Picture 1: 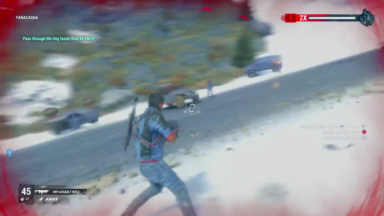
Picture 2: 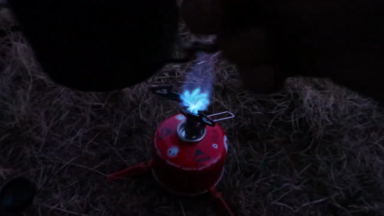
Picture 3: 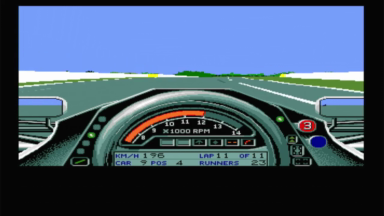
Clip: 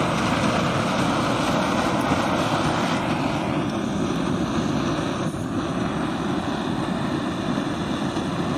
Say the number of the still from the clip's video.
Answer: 2